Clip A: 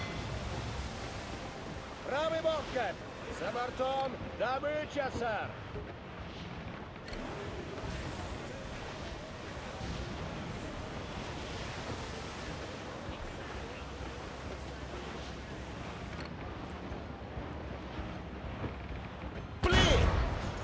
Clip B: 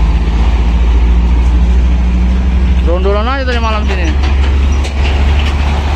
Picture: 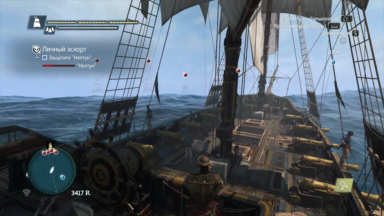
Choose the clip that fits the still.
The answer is A